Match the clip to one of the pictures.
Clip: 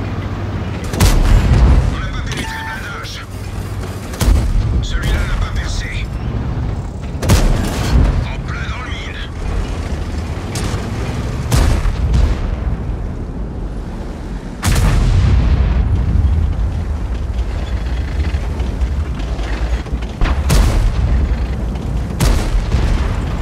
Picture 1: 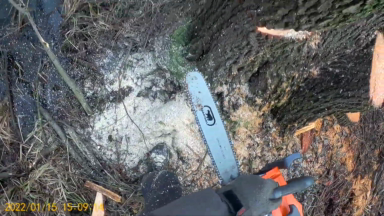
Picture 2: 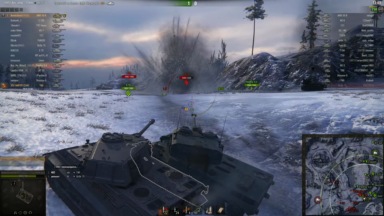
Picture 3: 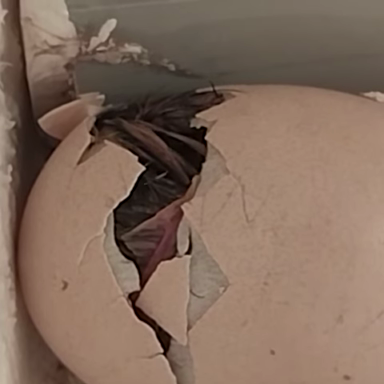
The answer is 2